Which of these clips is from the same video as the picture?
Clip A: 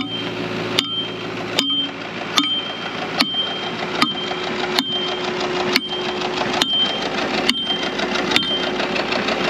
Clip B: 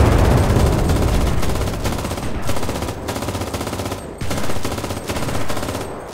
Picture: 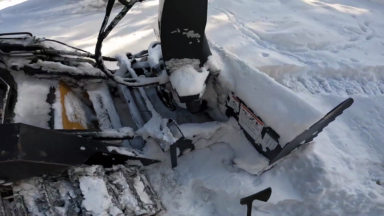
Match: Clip A